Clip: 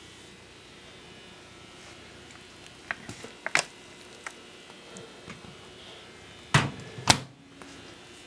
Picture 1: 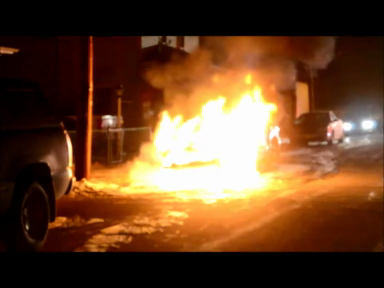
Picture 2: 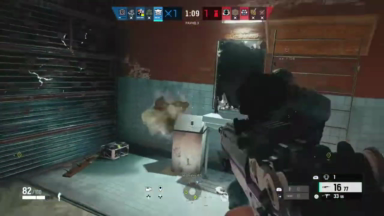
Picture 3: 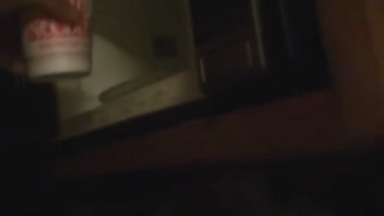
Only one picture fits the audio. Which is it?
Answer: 3